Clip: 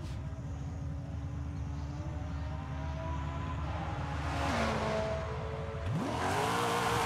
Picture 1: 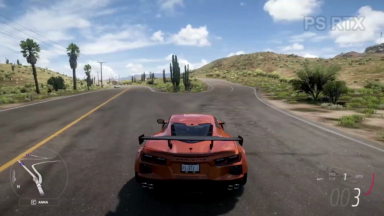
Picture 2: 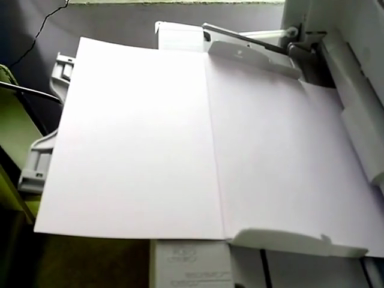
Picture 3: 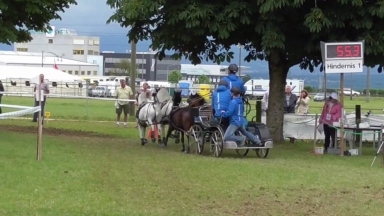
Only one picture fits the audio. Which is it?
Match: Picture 1